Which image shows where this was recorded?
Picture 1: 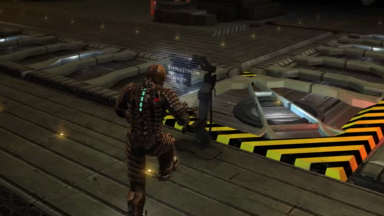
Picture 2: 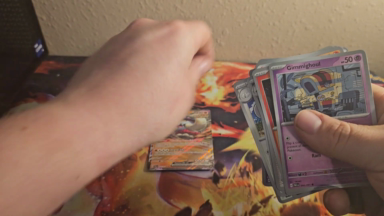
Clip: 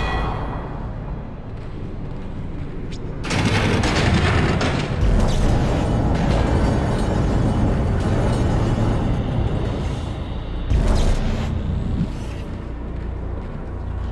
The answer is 1